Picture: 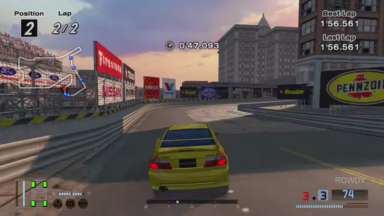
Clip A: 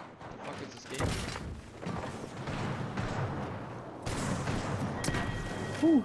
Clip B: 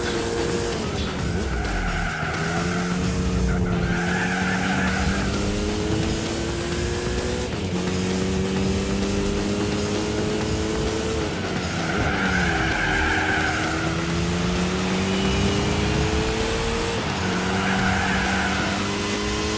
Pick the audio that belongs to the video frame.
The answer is B